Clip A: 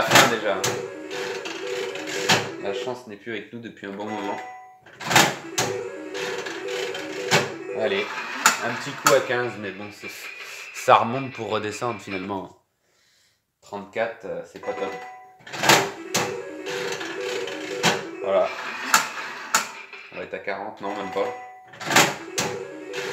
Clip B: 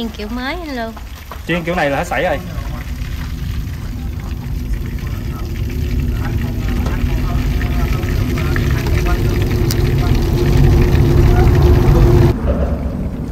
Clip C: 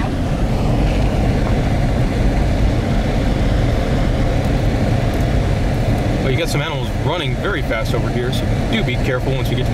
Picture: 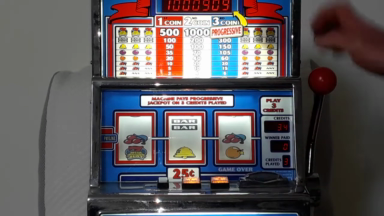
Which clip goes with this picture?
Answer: A